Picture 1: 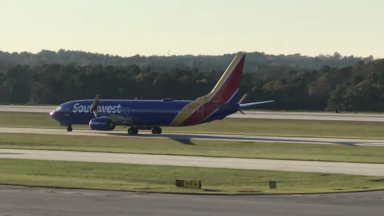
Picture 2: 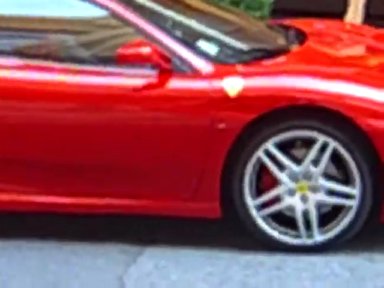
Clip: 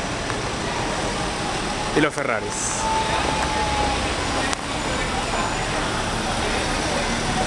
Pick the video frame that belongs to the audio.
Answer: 2